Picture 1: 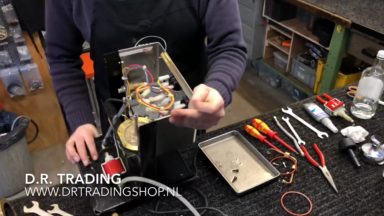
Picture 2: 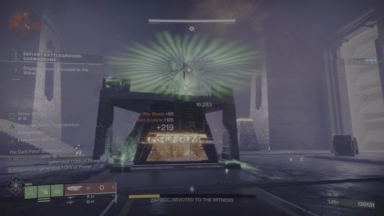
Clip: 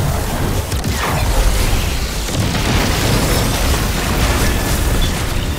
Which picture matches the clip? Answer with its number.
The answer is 2